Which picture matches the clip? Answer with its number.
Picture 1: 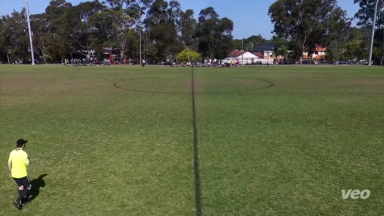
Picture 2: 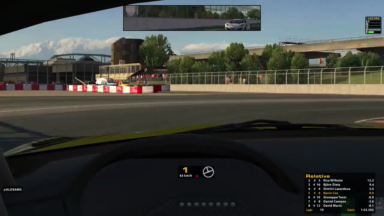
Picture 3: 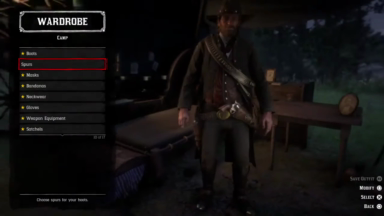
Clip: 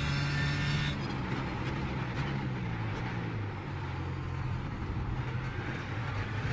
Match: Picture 2